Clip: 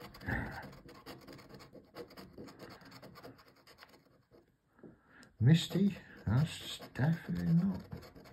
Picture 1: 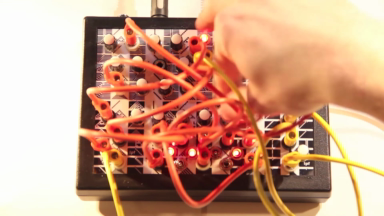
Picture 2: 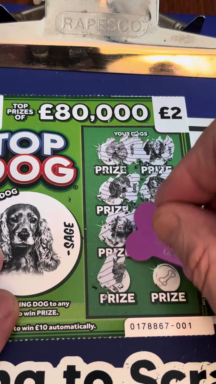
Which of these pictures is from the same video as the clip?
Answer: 2